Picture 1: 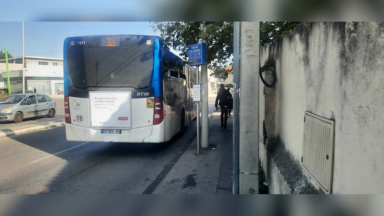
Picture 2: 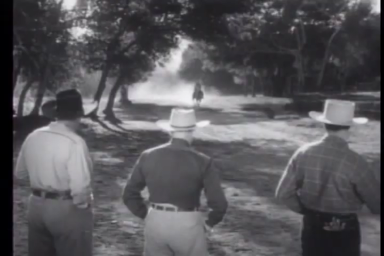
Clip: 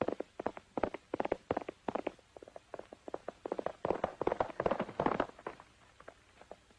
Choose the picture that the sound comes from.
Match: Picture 2